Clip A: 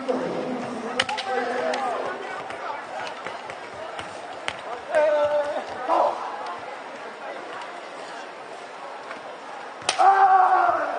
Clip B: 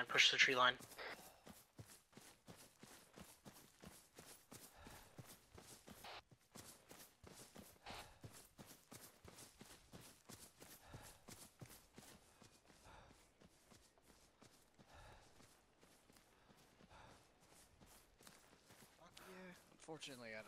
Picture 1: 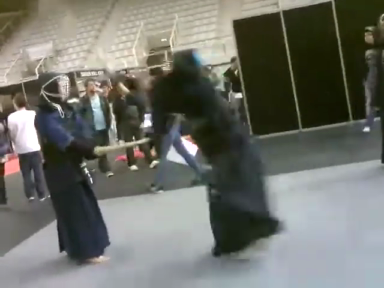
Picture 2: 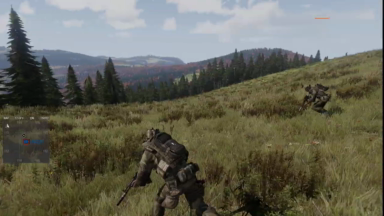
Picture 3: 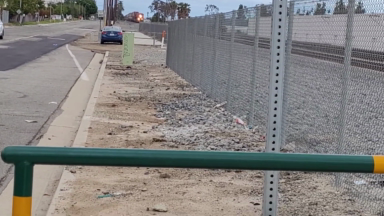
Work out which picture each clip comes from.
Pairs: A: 1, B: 2